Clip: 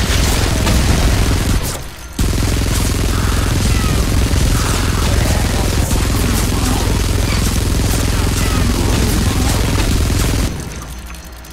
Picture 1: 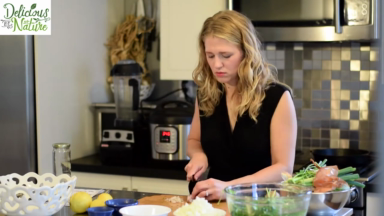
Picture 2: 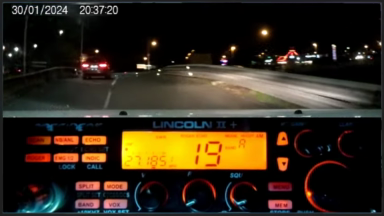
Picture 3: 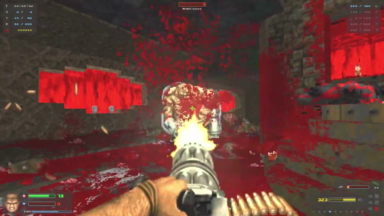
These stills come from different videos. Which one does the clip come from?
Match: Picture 3